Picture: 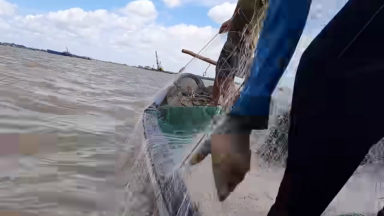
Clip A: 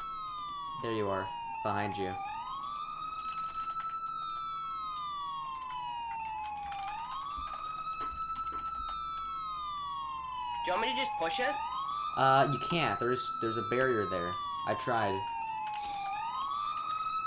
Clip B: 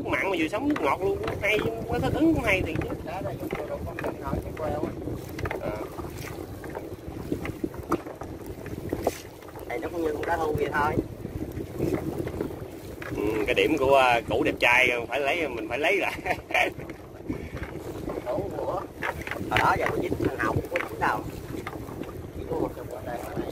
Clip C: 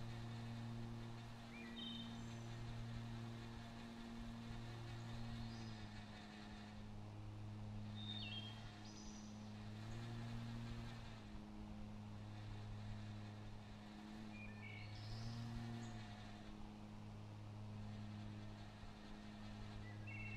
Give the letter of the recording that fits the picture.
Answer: B